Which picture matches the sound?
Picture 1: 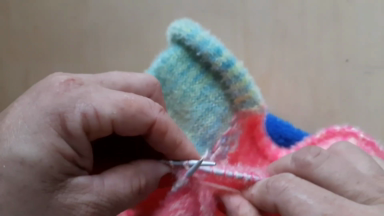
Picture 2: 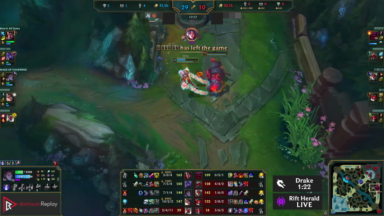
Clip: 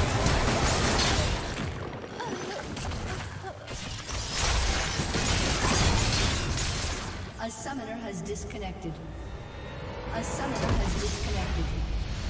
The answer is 2